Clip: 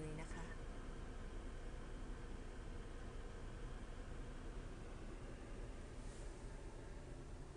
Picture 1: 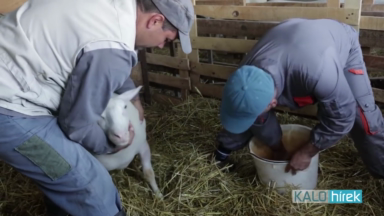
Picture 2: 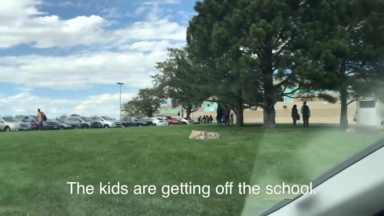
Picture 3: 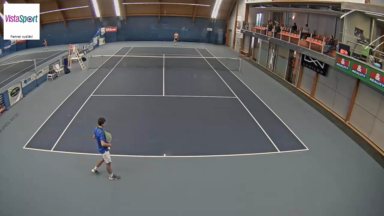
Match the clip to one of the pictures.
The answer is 2